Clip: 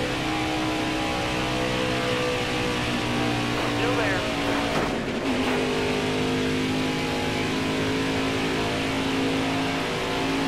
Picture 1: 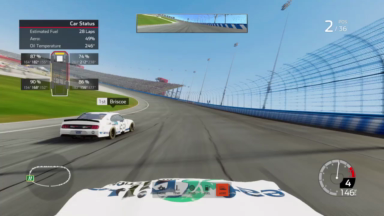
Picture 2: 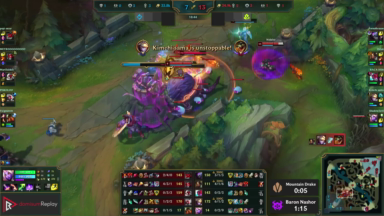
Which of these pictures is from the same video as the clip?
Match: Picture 1